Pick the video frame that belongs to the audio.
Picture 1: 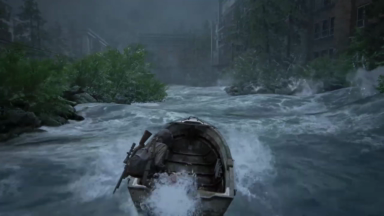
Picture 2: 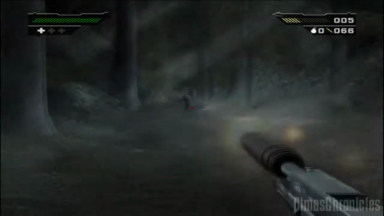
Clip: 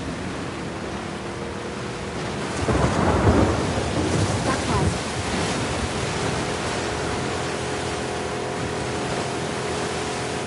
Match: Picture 1